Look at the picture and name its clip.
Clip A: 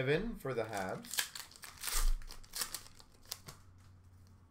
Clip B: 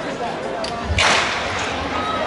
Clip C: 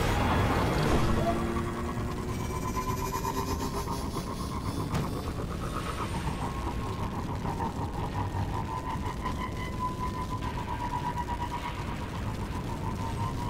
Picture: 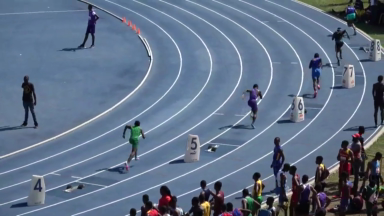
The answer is B